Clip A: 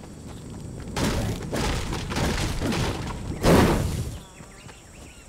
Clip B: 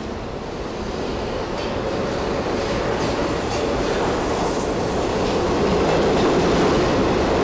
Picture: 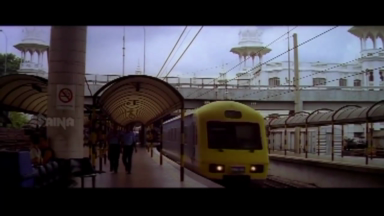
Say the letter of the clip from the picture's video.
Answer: B